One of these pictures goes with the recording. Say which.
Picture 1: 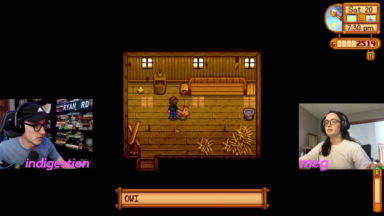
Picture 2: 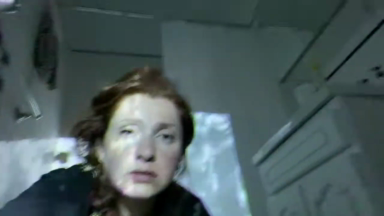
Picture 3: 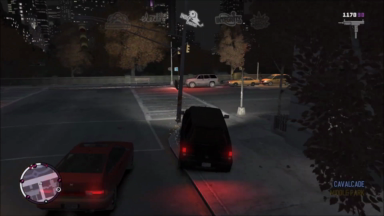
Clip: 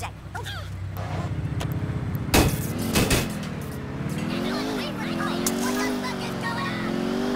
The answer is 3